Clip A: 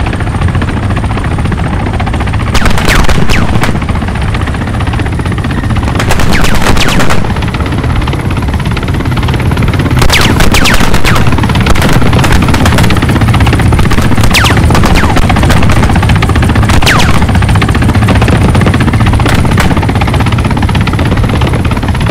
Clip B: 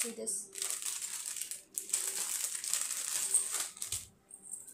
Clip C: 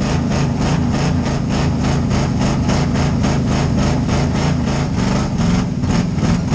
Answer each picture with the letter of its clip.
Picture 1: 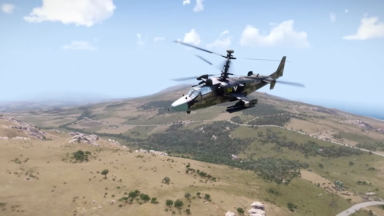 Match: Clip A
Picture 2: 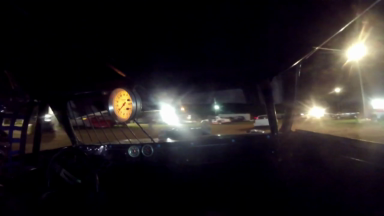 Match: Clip C